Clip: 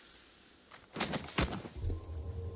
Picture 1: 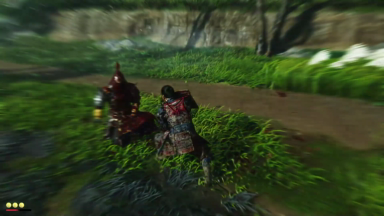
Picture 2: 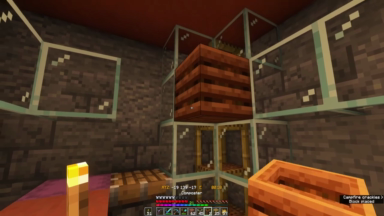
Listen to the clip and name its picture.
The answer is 1